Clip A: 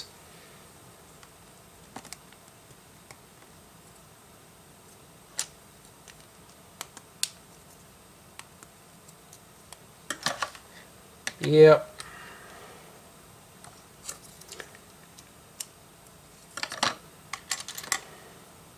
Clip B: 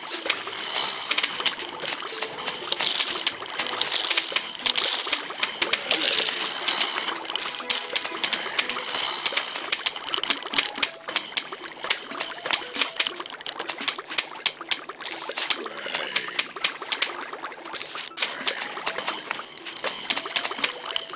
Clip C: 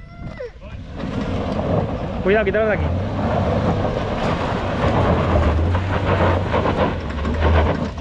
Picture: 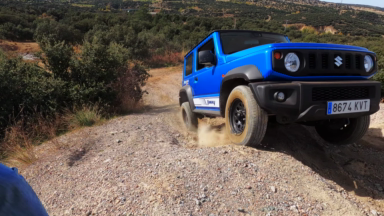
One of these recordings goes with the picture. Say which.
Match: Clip C